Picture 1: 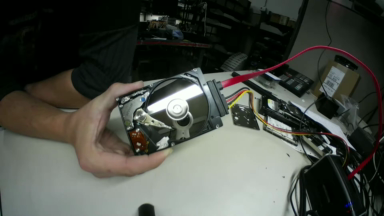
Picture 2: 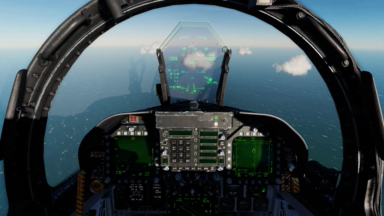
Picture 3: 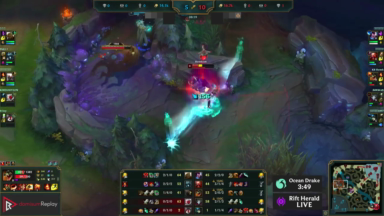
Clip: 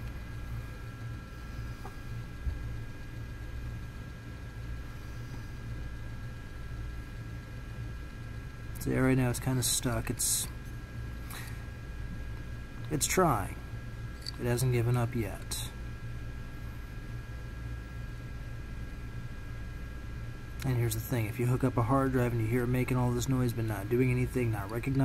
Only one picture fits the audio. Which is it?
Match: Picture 1